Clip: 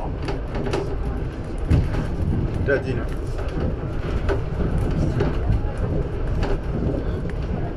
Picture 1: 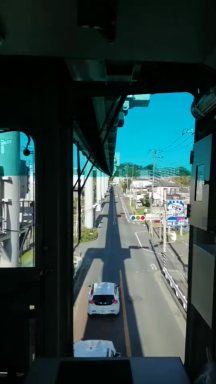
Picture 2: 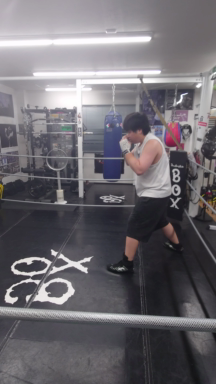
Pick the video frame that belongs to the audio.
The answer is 1